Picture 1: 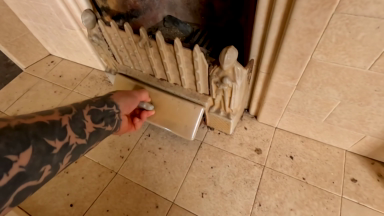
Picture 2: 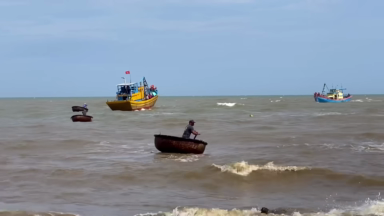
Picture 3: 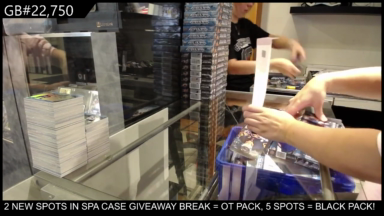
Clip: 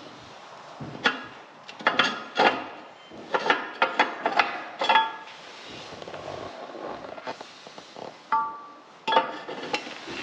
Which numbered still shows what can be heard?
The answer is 1